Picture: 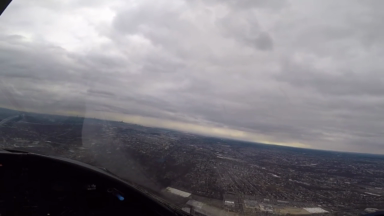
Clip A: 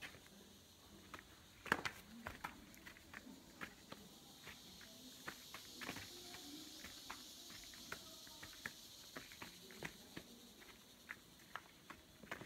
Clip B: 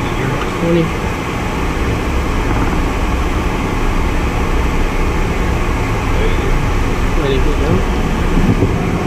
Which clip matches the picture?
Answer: B